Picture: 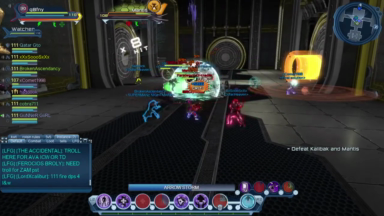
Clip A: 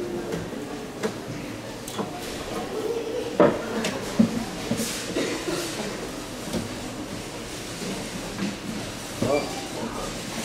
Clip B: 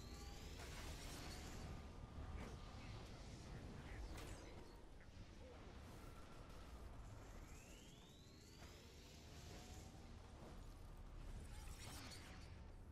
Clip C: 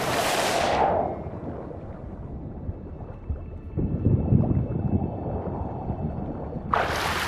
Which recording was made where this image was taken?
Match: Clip B